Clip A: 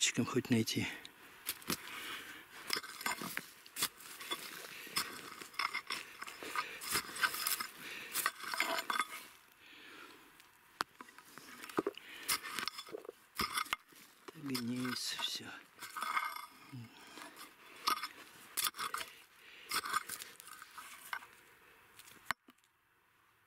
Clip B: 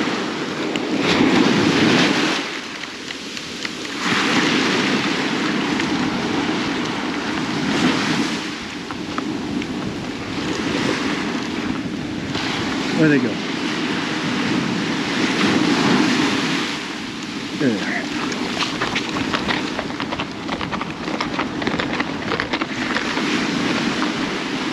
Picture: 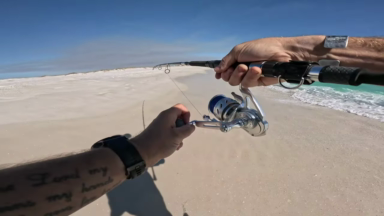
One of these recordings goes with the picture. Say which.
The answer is B